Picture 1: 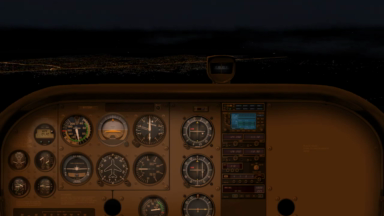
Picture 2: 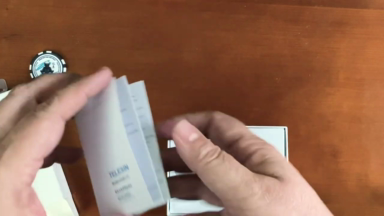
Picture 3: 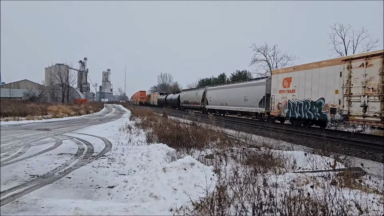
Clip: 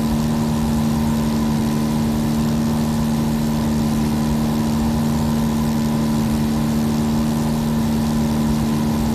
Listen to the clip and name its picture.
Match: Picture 1